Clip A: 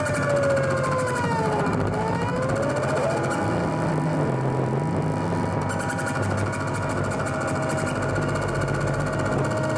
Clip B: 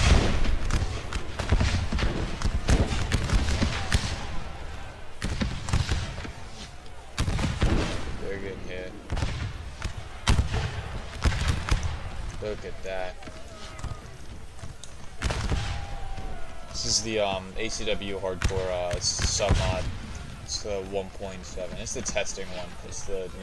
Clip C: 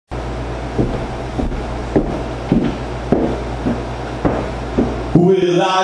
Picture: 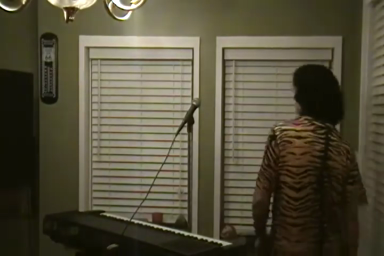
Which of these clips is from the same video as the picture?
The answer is C